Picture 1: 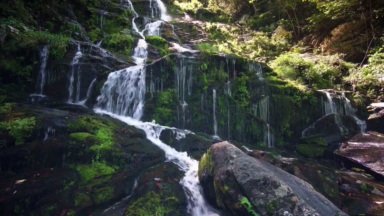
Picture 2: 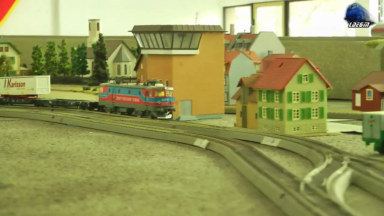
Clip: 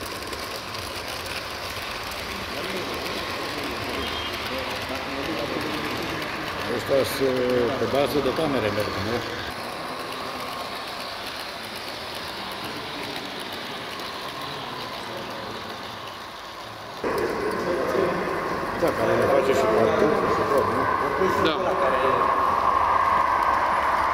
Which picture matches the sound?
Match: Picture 2